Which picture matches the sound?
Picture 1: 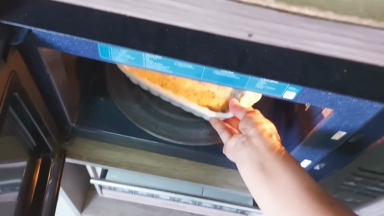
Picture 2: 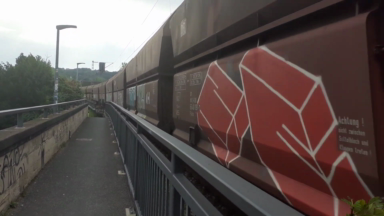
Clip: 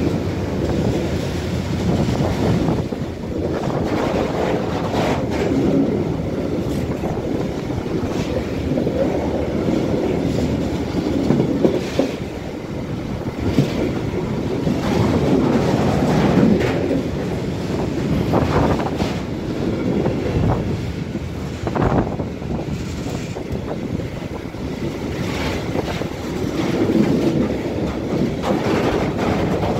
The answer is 2